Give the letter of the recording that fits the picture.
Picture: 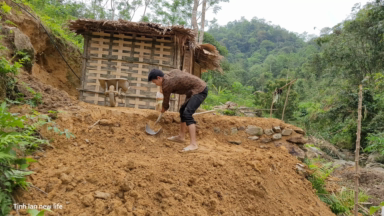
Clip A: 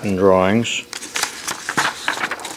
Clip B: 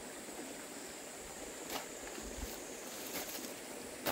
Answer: B